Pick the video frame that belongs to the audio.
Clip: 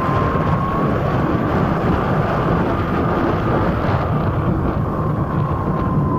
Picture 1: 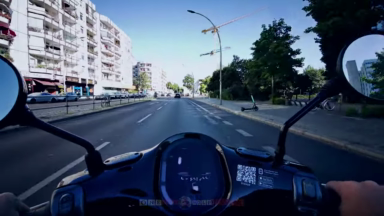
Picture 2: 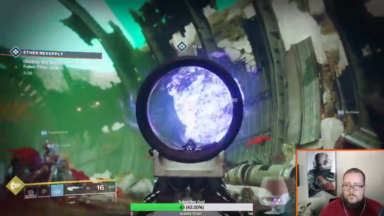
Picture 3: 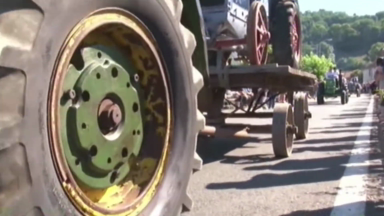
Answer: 1